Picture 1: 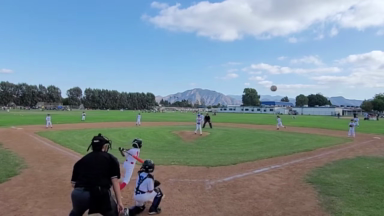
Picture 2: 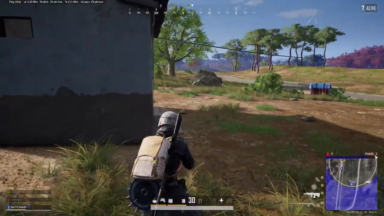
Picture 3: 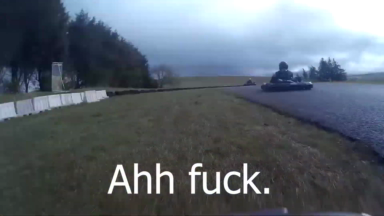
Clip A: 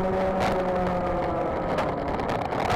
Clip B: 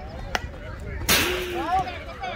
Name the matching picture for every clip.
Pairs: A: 3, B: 1